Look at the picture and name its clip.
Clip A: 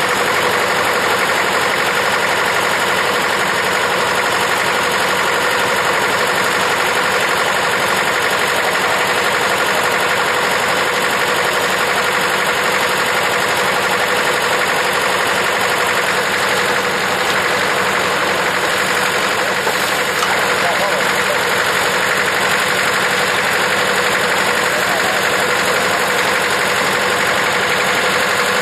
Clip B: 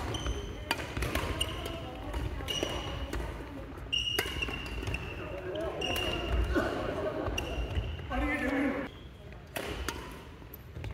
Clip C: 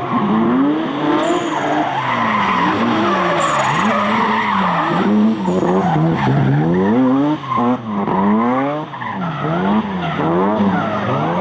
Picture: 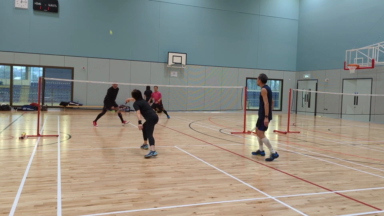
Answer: B